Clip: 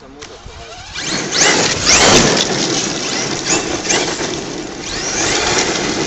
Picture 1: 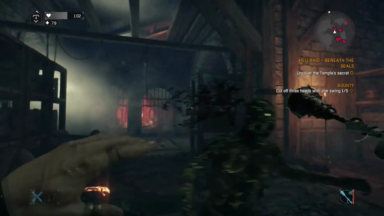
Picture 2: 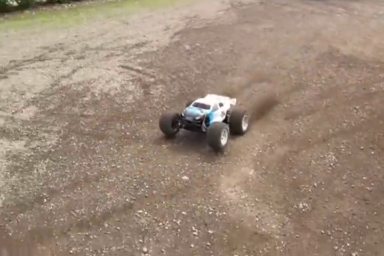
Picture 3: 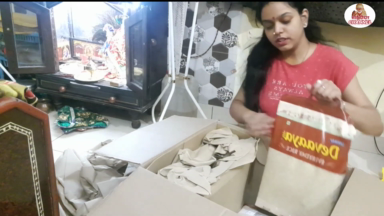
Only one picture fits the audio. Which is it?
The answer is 2